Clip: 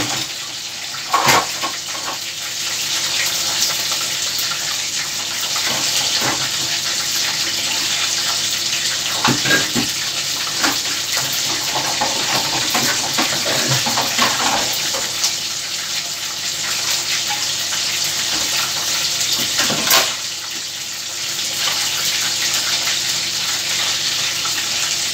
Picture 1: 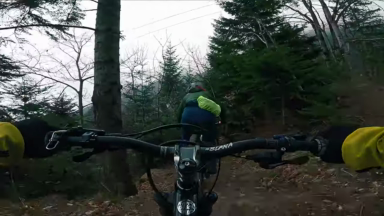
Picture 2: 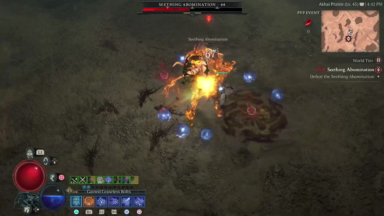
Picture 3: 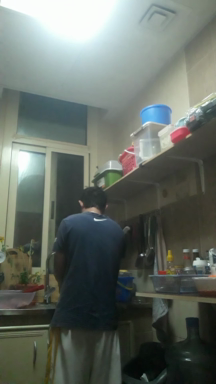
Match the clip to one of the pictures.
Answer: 3